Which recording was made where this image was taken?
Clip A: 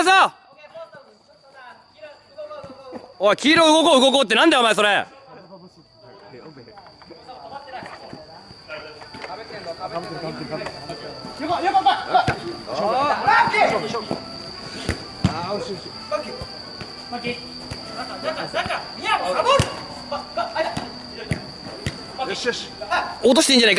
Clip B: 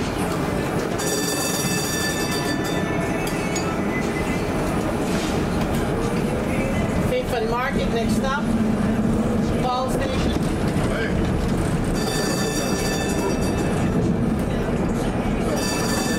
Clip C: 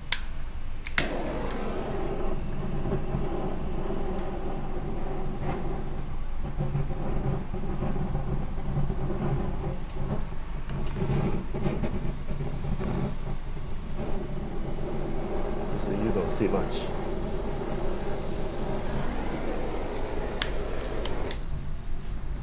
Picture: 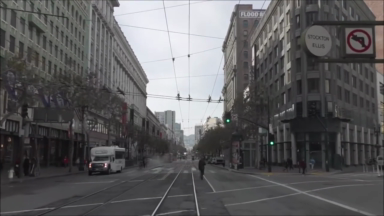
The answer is B